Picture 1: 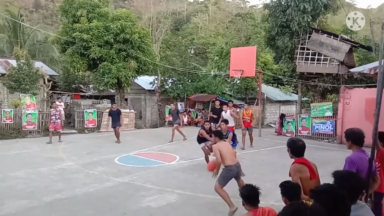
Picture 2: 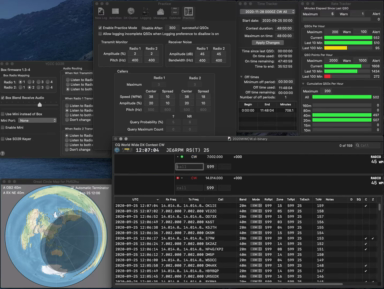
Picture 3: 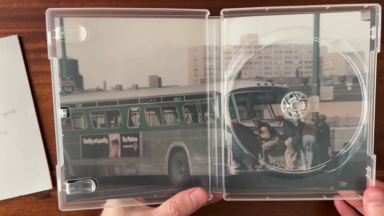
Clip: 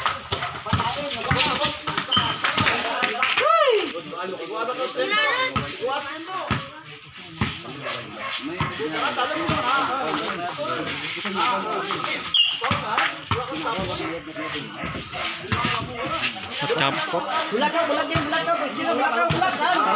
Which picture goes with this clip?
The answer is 1